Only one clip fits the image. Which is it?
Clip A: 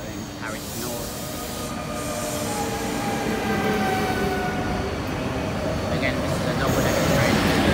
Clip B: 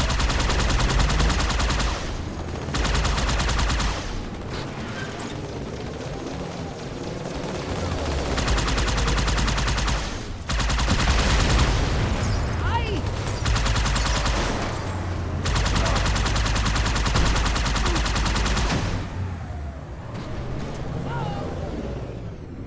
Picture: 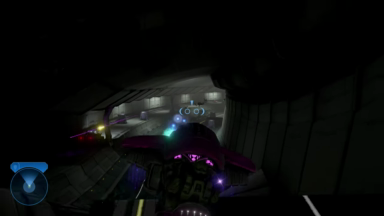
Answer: B